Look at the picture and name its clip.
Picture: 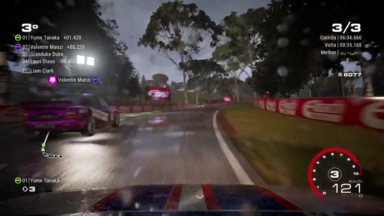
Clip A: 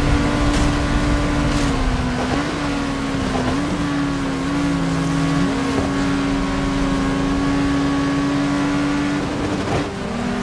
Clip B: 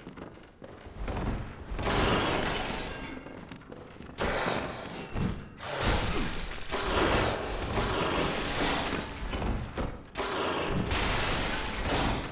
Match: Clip A